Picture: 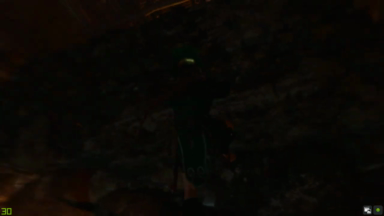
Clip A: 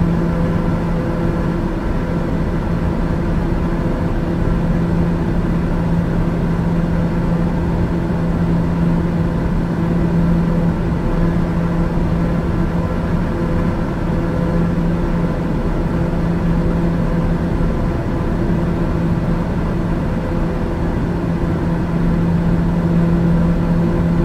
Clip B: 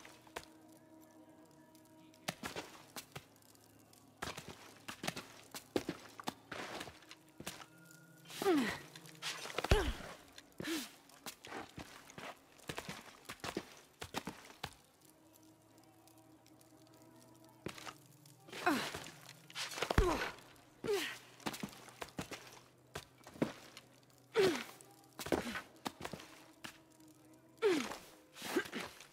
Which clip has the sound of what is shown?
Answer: B